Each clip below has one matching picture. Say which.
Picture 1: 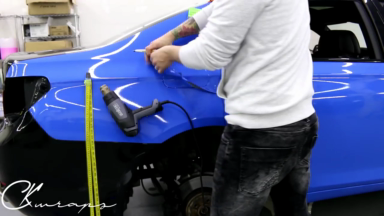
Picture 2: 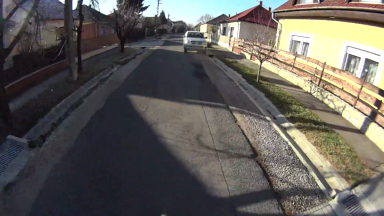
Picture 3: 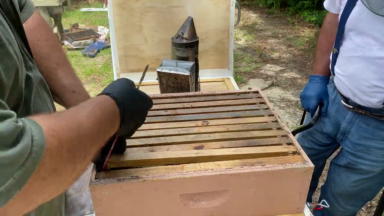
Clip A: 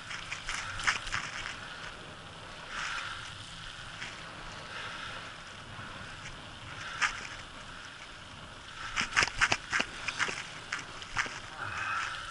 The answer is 2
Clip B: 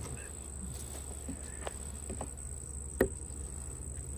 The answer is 3